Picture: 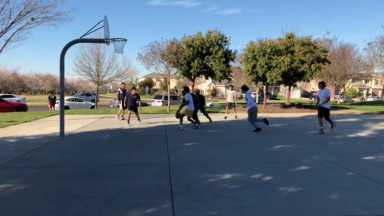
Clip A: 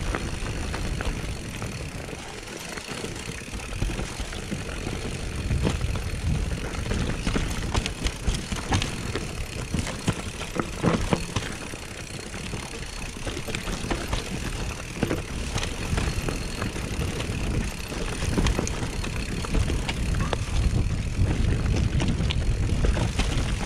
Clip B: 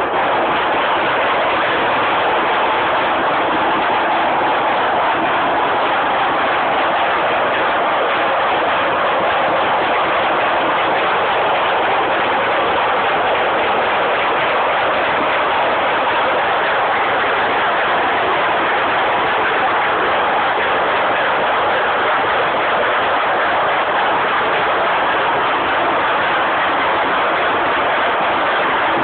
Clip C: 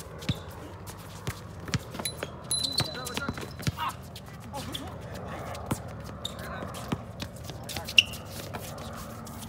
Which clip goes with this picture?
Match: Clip C